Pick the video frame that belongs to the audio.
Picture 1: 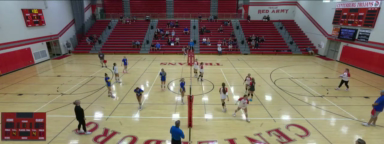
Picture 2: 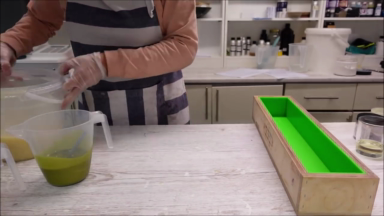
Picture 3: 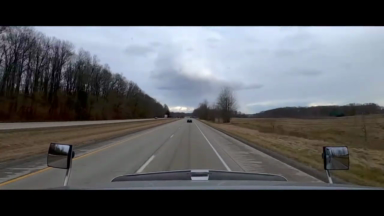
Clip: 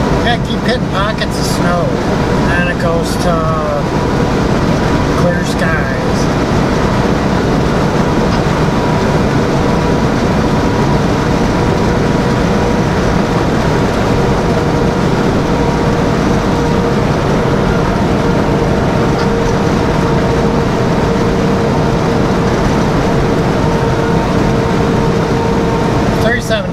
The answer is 3